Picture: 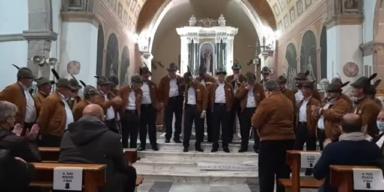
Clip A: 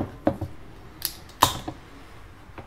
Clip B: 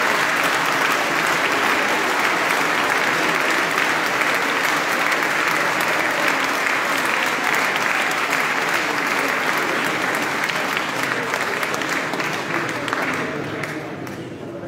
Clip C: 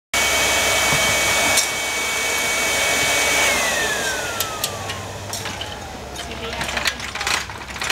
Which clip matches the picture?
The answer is B